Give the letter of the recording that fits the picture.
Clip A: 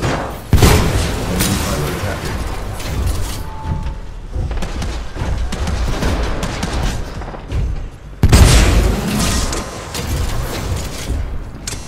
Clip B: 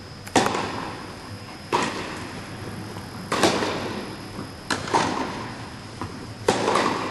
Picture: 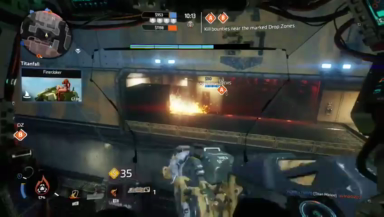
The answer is A